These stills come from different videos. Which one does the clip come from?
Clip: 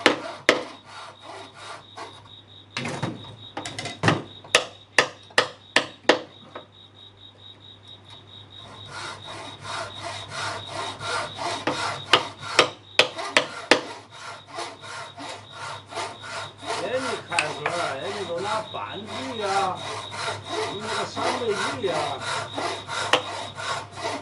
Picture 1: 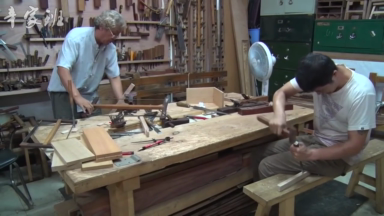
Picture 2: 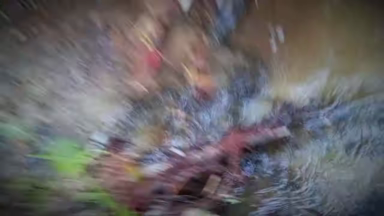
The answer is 1